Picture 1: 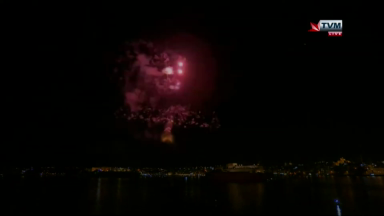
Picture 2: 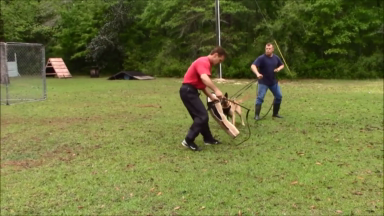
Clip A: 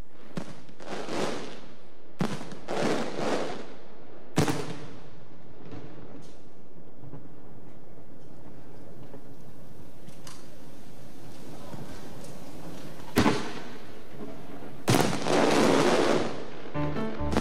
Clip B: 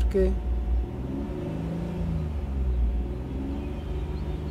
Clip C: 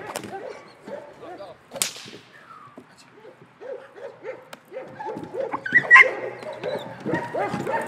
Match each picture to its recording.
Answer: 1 A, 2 C